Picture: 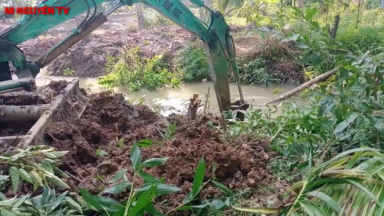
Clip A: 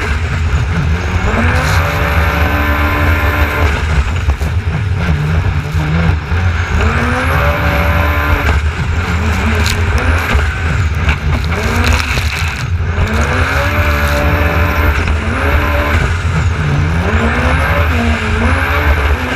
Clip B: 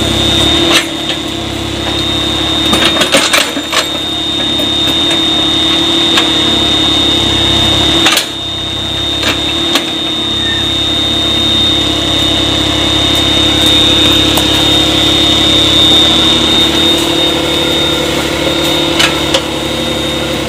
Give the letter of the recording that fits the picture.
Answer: B